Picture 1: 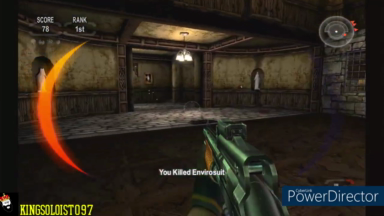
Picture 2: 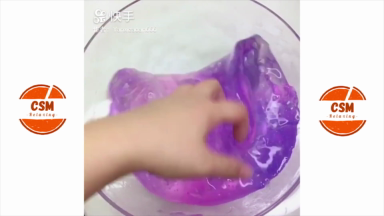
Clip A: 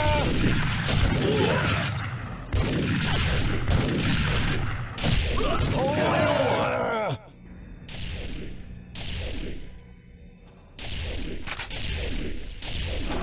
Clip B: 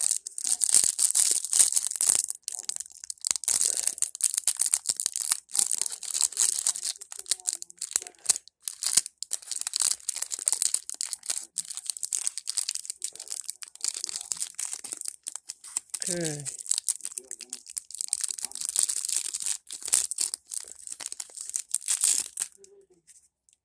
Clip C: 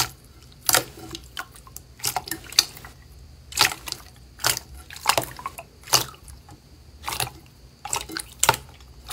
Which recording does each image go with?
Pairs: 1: A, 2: C